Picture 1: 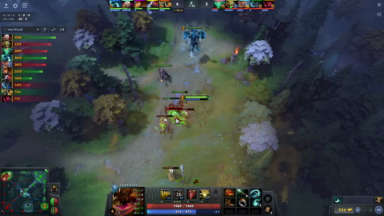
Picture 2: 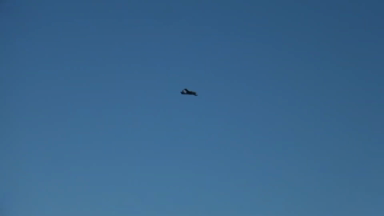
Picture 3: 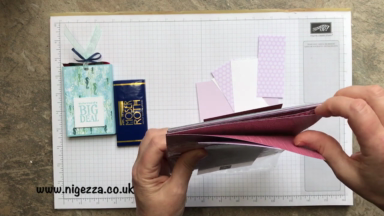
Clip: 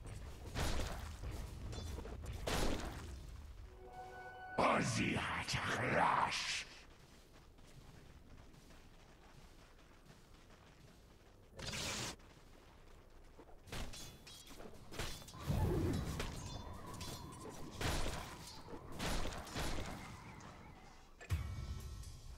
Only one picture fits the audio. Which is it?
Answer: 1